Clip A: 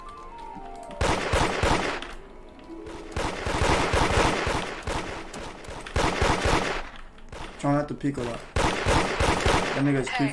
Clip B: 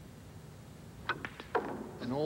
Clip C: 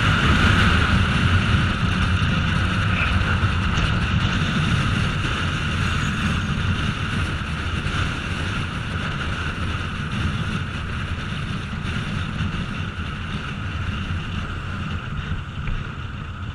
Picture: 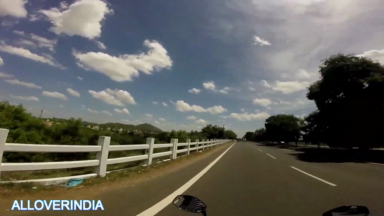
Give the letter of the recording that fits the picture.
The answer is C